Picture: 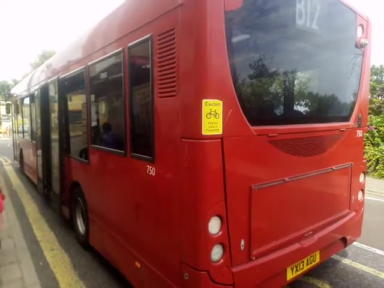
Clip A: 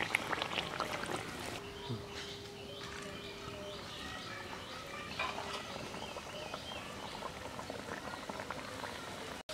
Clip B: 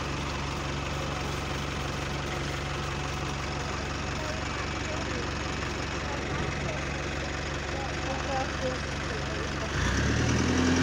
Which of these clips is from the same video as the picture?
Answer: B